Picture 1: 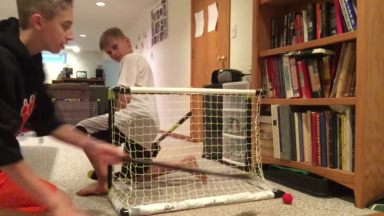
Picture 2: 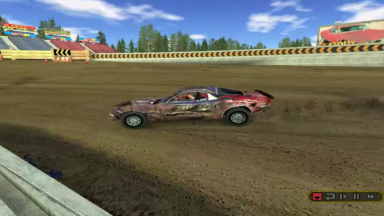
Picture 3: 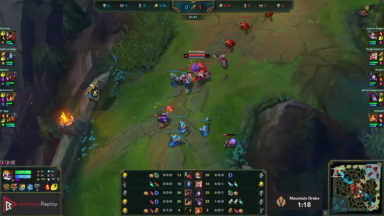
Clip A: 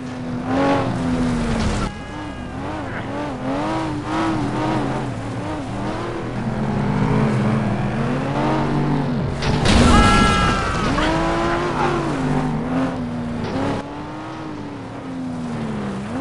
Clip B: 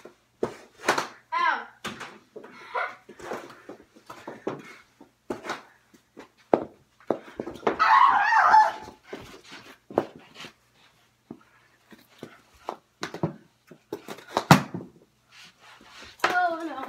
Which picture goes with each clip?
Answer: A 2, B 1